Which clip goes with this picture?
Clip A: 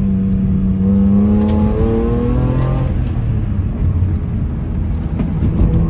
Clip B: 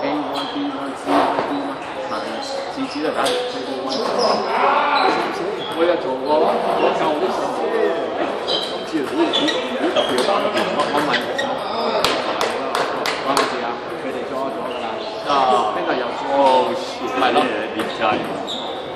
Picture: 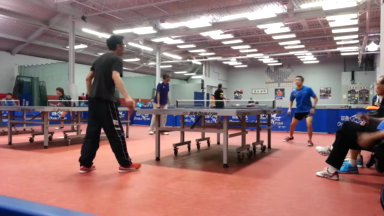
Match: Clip B